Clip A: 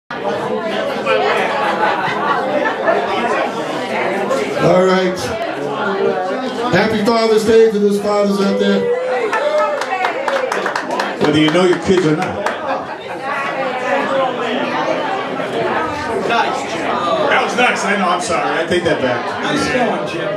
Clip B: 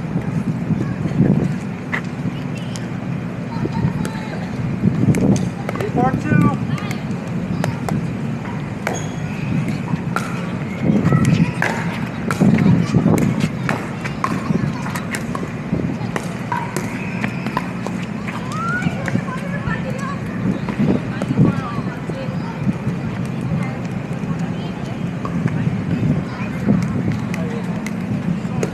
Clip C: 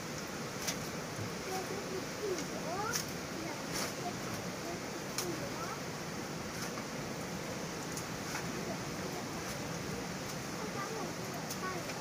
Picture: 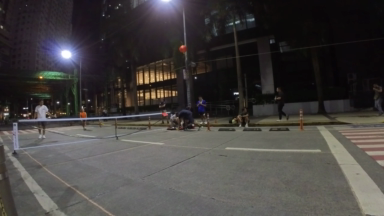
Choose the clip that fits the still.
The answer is B